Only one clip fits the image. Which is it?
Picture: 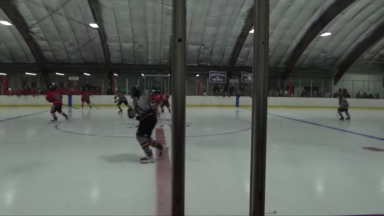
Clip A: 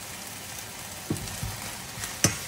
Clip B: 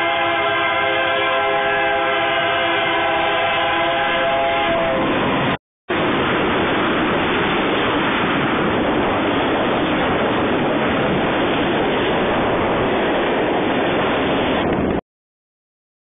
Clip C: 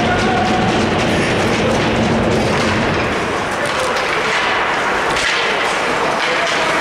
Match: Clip C